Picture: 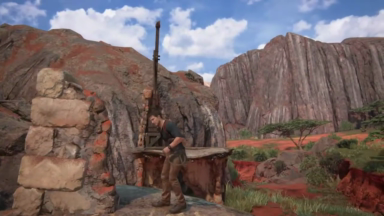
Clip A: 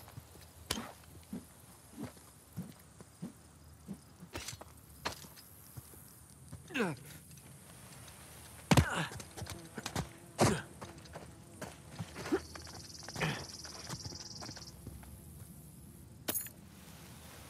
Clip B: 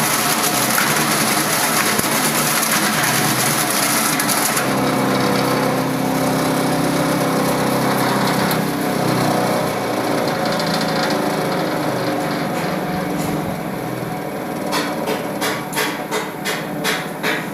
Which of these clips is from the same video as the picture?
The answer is A